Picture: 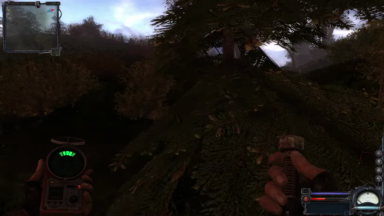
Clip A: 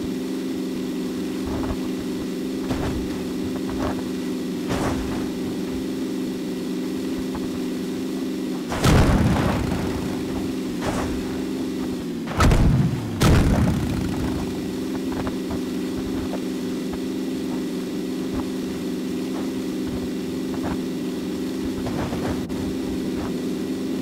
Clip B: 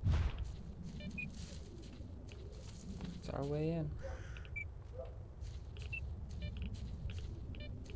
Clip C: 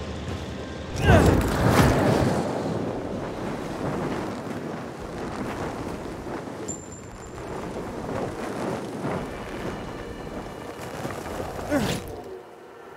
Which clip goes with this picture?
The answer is B